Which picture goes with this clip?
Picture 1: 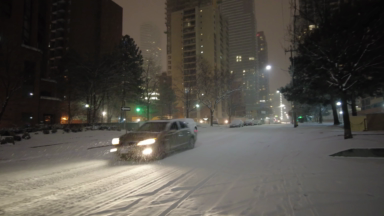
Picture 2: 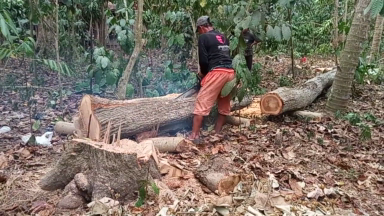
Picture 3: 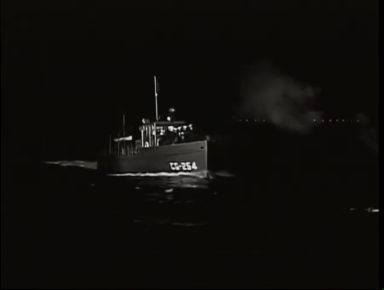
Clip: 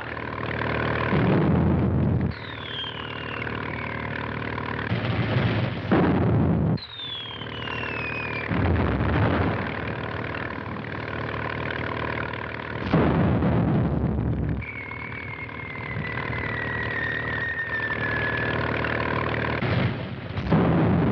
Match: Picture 3